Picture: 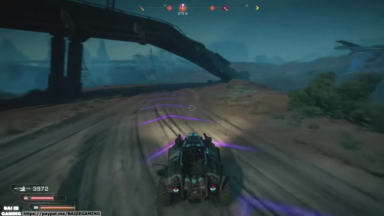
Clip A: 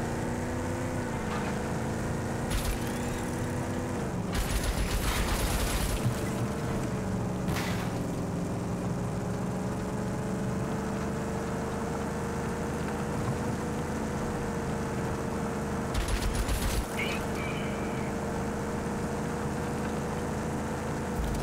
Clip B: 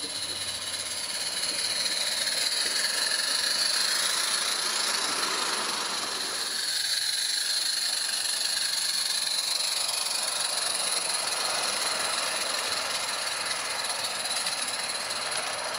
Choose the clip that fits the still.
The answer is A